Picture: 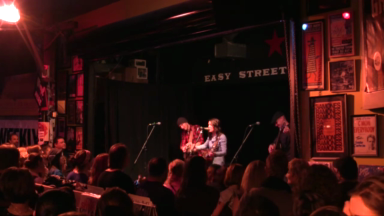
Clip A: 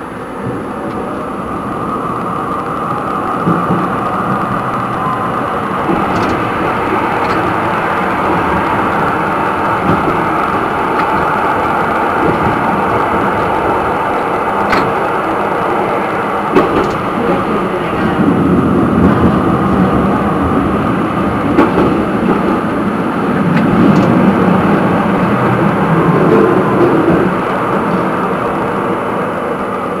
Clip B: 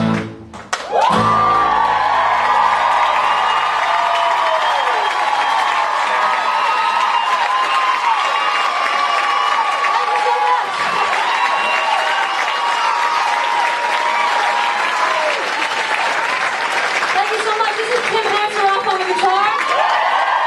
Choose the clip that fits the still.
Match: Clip B